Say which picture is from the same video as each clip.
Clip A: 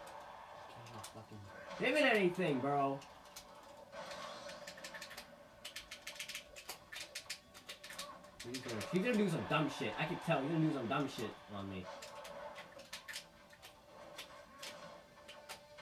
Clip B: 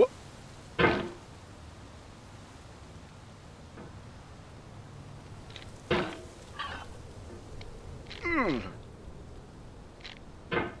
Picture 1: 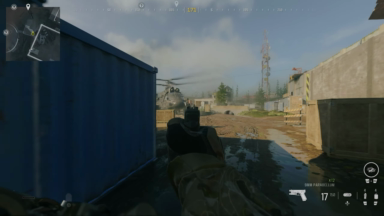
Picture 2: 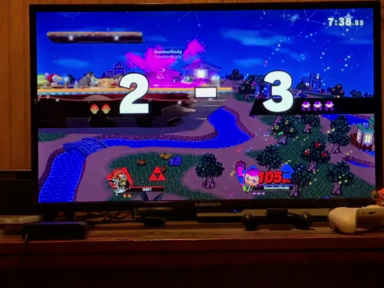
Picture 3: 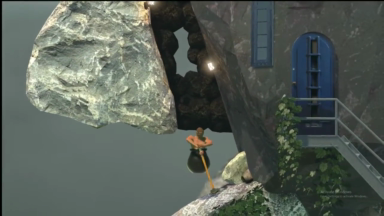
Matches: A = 2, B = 3